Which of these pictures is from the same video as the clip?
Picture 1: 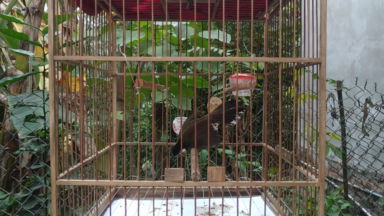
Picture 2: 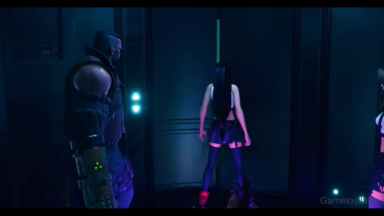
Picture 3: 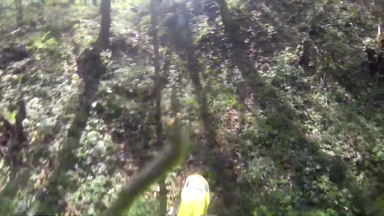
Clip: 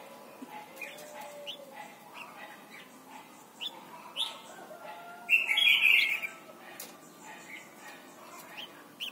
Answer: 1